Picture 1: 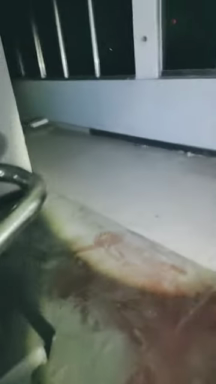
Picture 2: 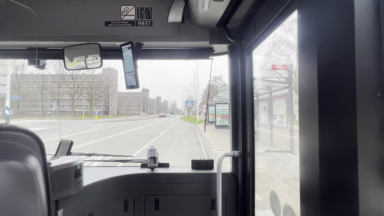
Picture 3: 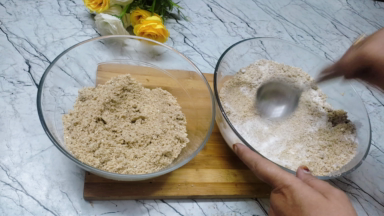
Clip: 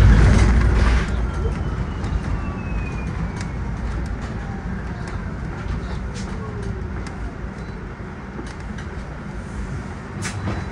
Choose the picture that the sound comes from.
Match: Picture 2